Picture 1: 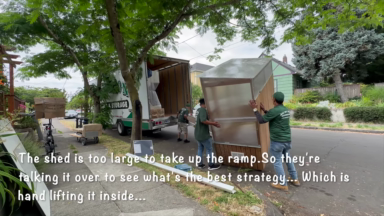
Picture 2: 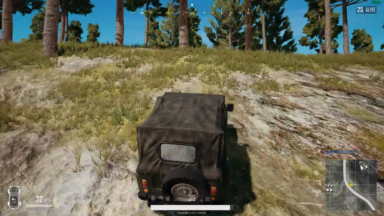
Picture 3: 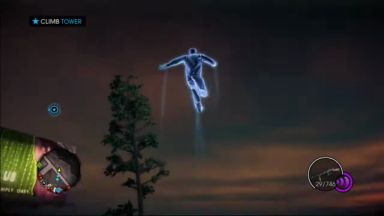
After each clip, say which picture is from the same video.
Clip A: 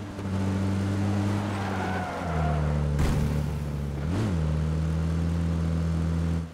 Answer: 2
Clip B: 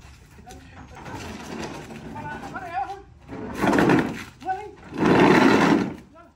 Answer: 1